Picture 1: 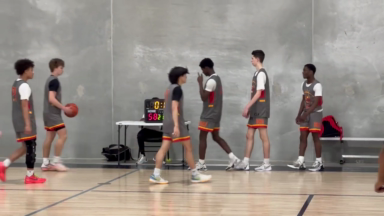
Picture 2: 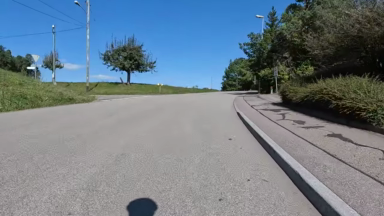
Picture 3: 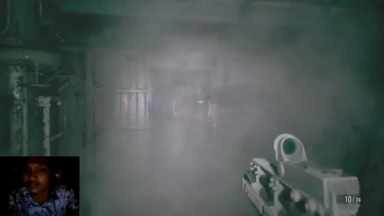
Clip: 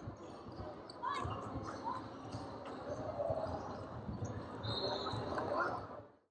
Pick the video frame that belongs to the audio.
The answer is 1